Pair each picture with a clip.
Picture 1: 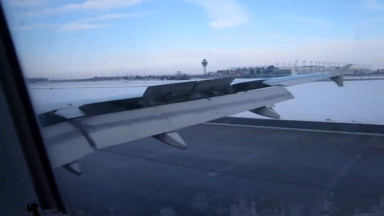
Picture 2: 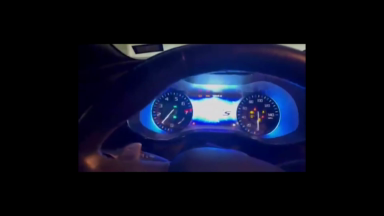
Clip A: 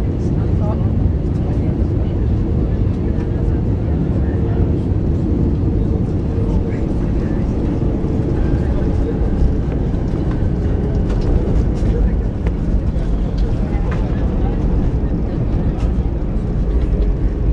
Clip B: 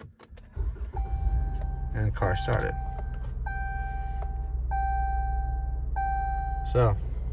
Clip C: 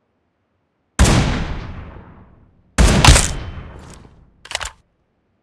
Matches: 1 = A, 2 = B